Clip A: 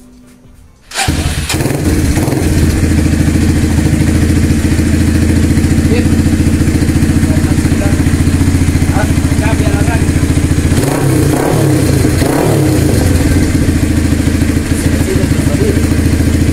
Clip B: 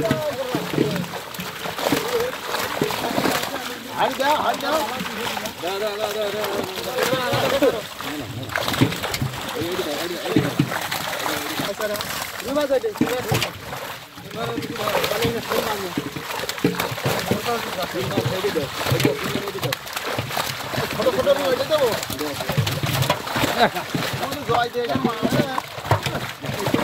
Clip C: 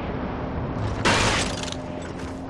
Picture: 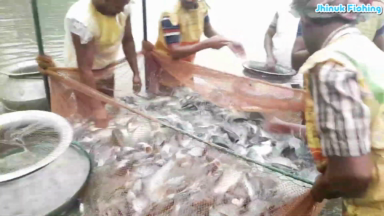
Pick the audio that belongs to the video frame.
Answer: B